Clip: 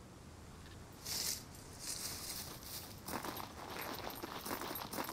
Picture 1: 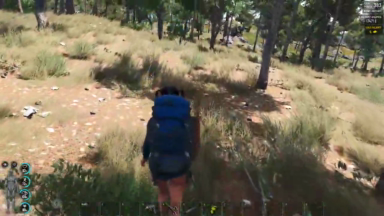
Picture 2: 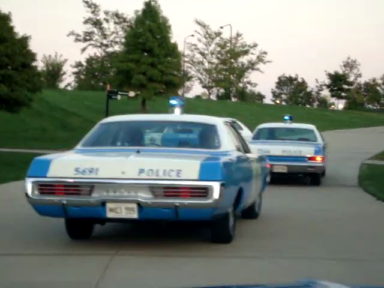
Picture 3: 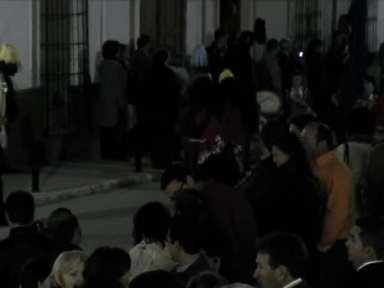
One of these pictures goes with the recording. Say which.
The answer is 1